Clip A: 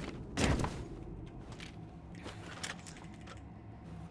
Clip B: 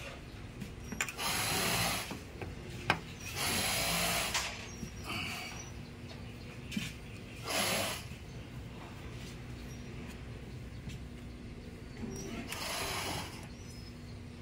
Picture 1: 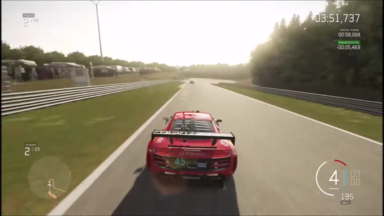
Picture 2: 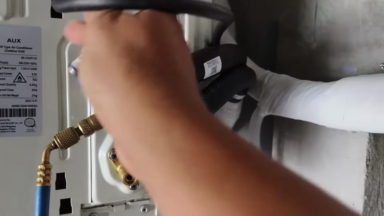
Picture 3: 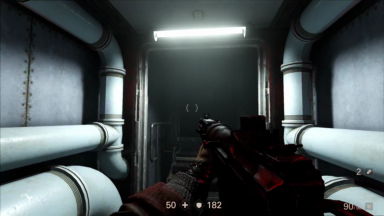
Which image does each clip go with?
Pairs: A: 3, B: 2